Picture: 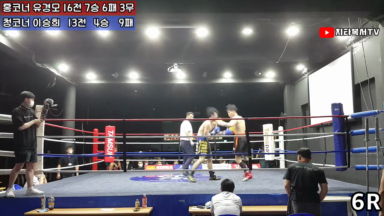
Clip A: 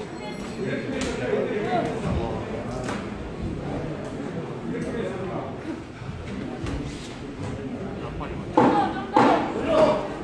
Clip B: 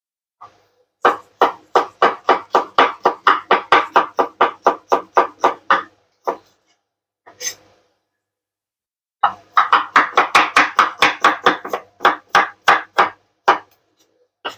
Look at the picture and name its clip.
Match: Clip A